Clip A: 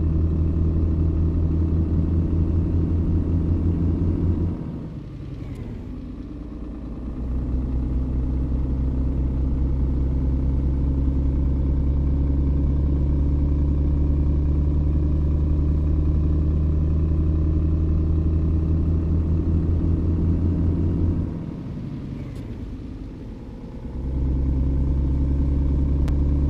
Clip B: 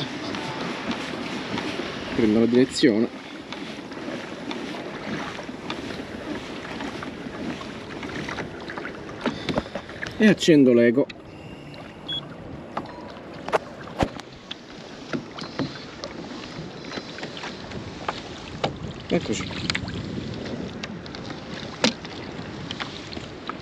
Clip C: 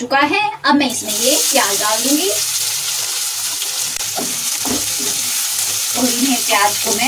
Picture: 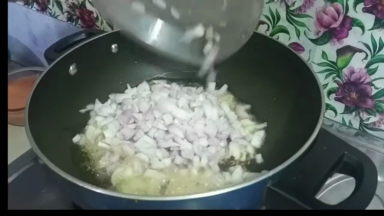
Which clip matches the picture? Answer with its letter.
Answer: C